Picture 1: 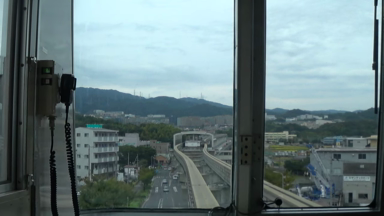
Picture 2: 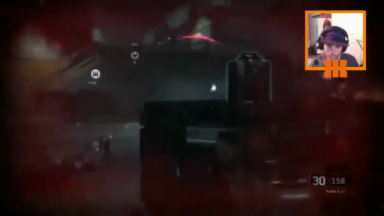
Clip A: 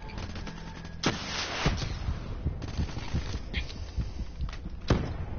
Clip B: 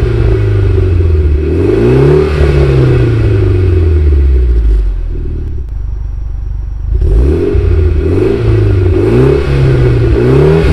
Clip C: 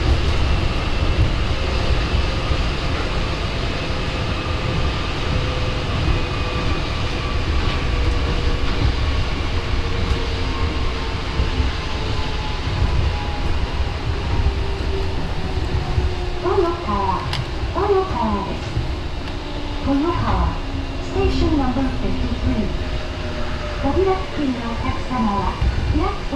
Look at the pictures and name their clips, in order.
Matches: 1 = C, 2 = A